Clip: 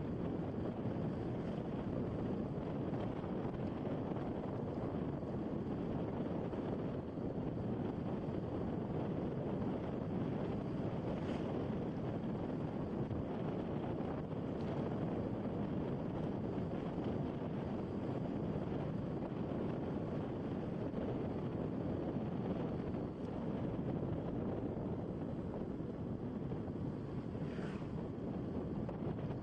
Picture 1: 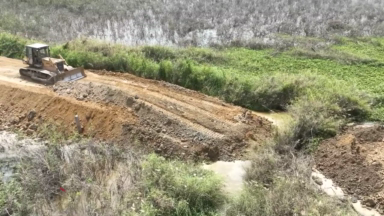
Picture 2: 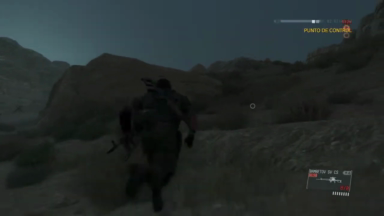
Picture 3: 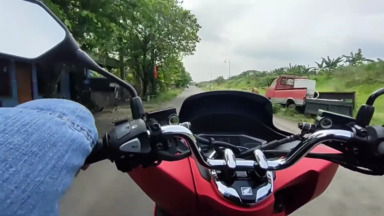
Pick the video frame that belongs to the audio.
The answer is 3